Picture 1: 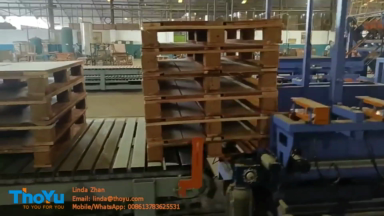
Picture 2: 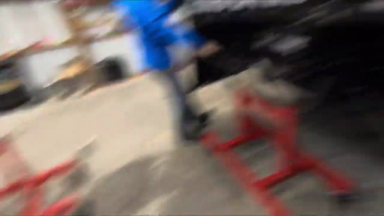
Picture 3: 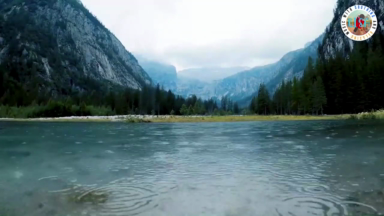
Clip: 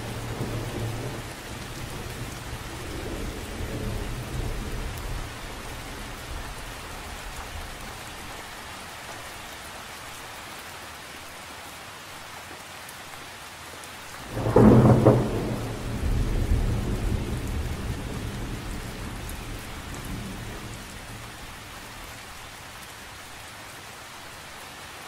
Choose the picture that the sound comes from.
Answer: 3